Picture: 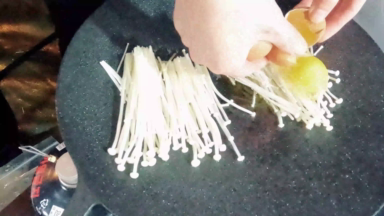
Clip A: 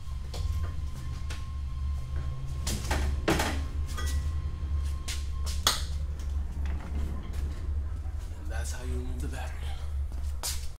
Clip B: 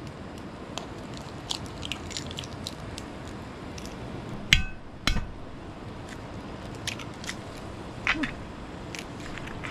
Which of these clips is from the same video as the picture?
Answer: B